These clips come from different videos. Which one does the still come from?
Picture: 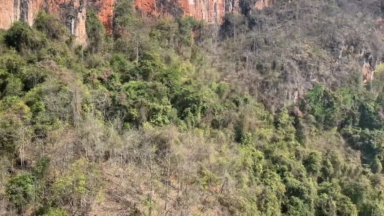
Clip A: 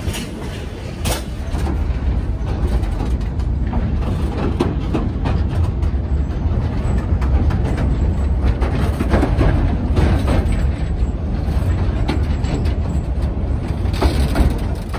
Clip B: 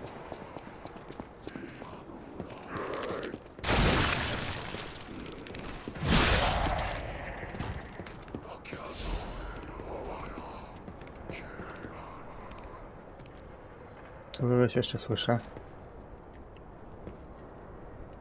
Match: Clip A